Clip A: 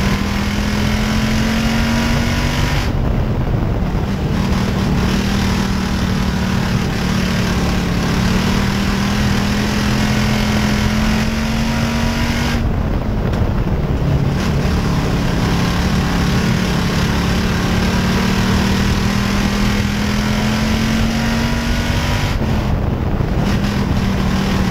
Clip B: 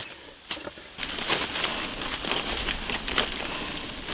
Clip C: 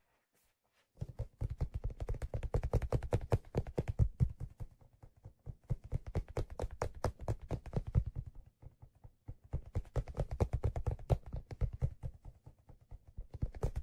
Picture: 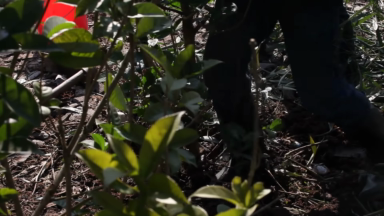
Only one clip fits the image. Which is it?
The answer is B